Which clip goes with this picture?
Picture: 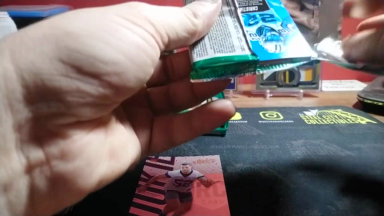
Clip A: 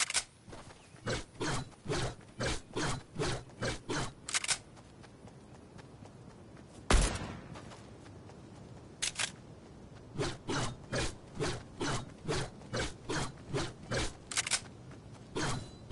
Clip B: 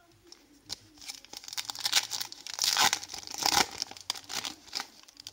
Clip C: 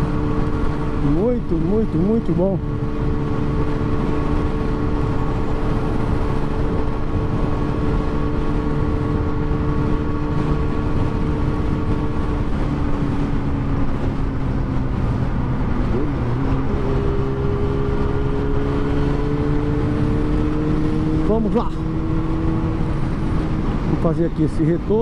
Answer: B